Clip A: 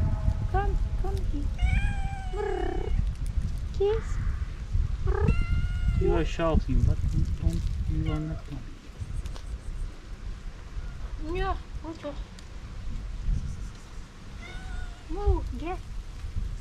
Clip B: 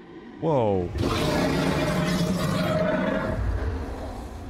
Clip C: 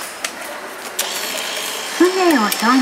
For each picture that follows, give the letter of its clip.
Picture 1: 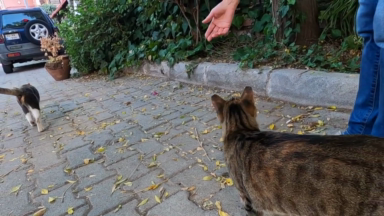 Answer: A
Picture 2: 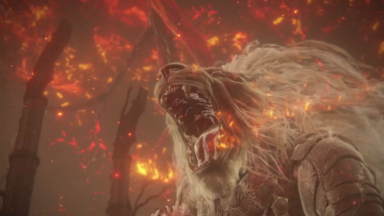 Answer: B